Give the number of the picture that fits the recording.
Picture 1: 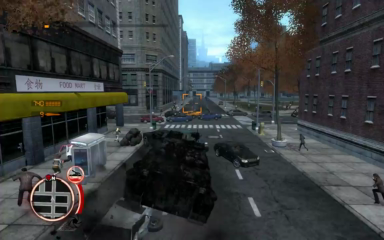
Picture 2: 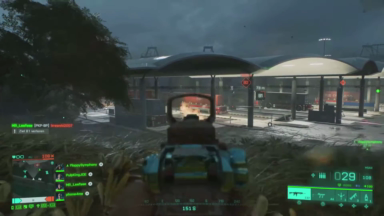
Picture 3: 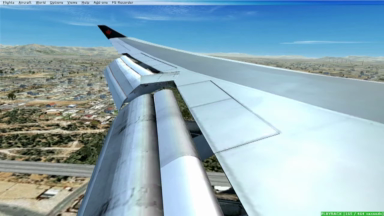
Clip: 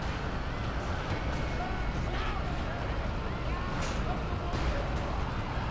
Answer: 1